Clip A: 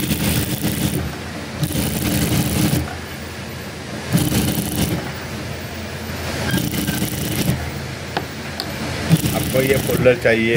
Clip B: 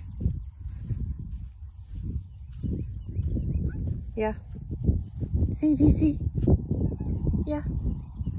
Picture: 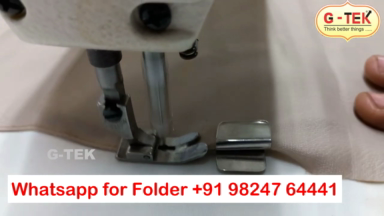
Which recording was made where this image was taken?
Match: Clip A